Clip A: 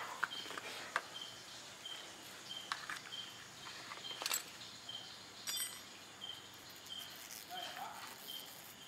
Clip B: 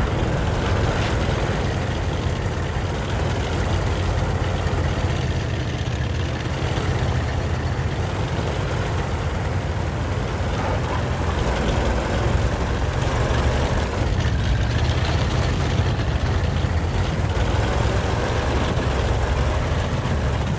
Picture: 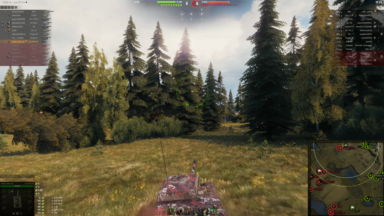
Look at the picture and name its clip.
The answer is B